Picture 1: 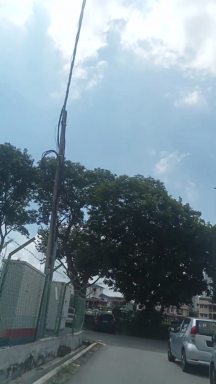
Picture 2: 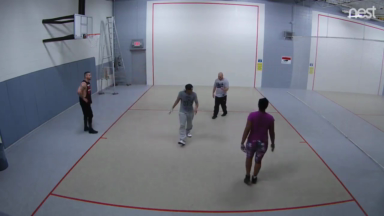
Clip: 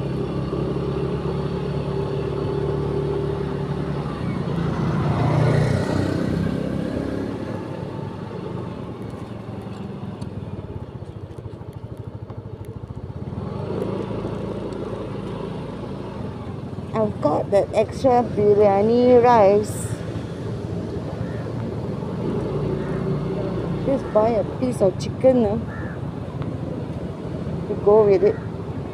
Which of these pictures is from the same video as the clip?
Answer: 1